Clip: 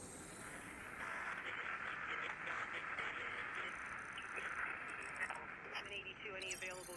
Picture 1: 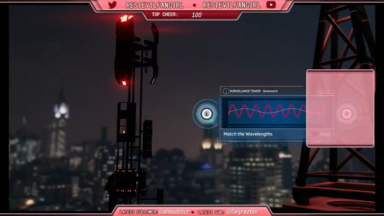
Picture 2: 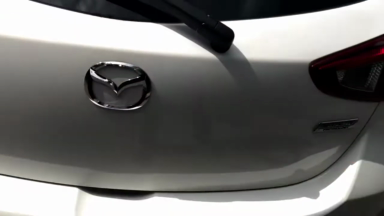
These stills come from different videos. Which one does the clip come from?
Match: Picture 1